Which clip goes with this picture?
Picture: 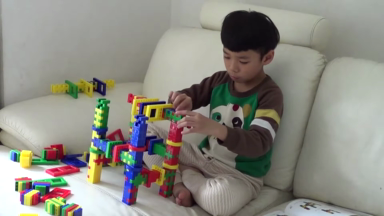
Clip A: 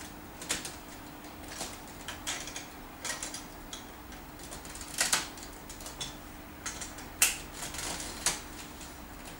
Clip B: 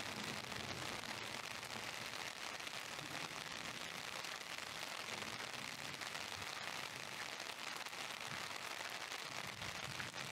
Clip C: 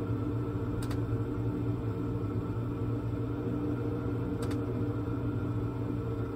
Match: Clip A